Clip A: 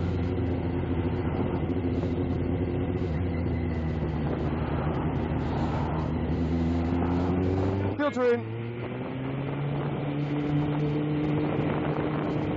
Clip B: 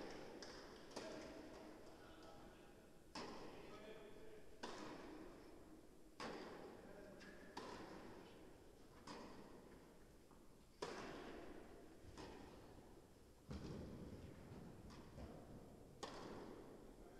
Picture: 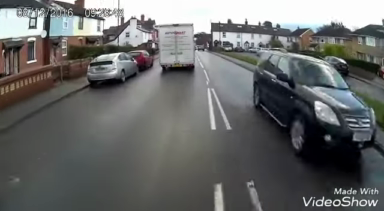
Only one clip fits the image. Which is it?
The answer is A